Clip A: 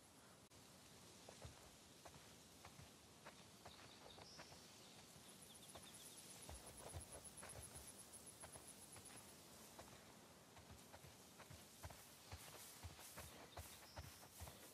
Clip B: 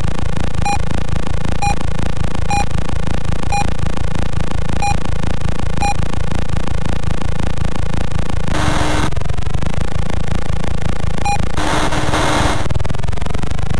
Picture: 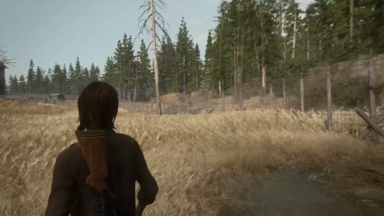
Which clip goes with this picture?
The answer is A